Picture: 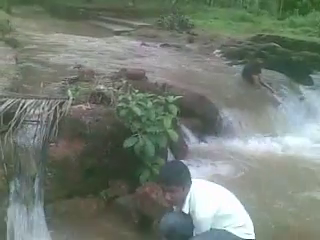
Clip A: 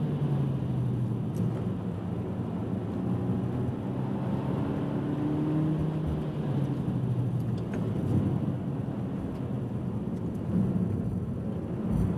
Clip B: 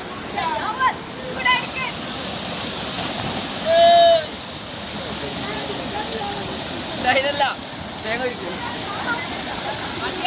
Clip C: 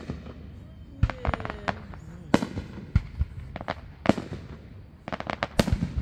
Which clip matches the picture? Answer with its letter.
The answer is B